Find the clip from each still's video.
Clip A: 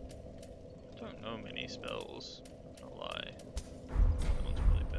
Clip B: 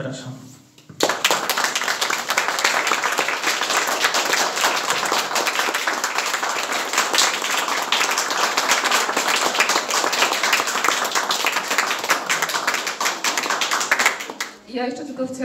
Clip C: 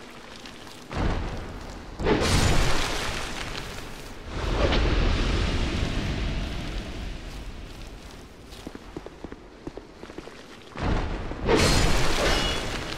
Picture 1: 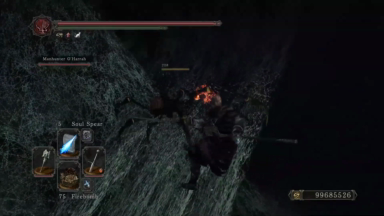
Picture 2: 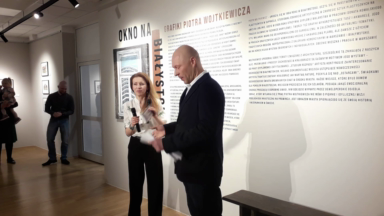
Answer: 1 C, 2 B